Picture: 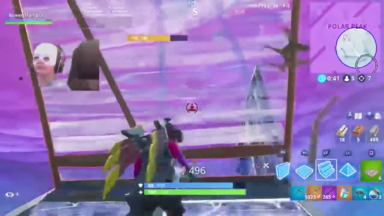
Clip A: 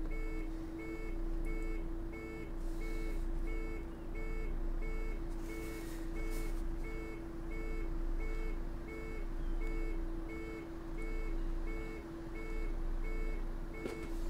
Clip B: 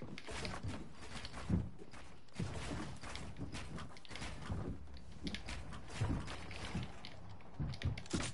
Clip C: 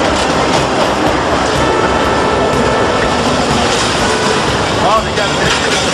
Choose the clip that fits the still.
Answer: B